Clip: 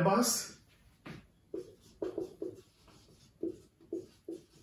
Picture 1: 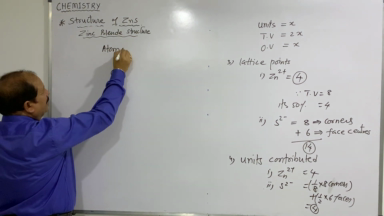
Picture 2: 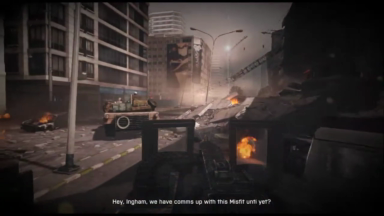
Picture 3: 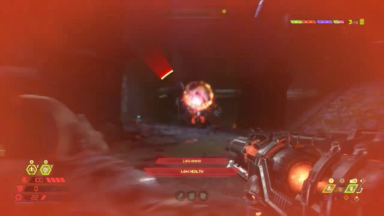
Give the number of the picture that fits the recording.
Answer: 1